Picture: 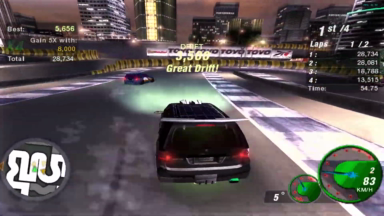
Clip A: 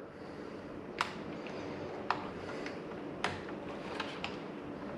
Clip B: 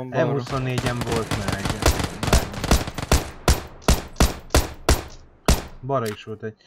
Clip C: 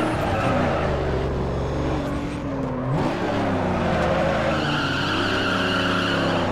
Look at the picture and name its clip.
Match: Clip C